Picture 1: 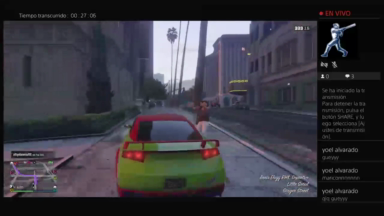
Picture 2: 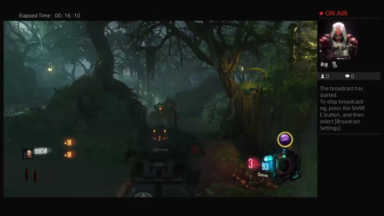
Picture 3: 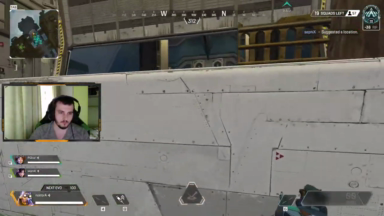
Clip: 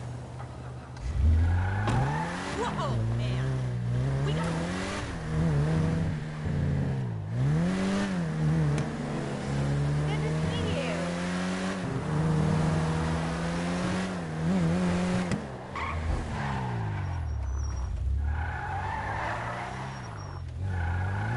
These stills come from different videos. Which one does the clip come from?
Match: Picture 1